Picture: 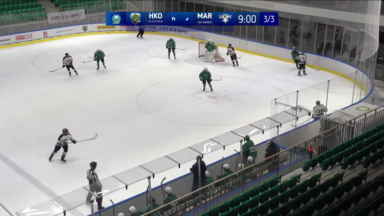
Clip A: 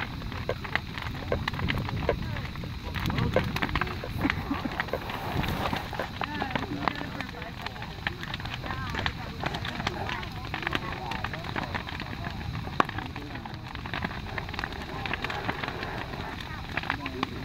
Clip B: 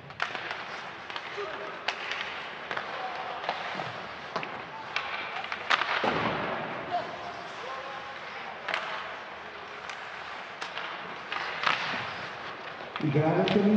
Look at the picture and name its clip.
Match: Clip B